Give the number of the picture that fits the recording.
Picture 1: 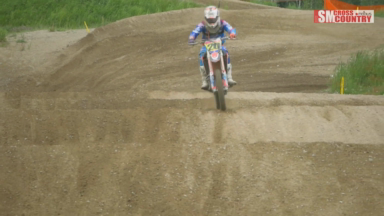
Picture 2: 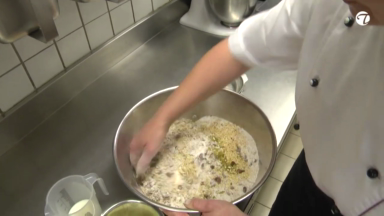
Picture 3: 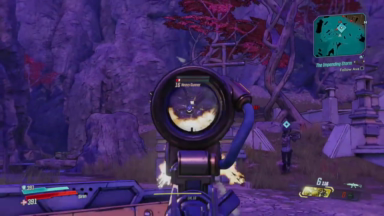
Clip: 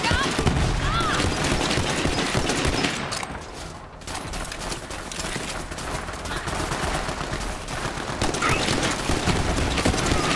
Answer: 3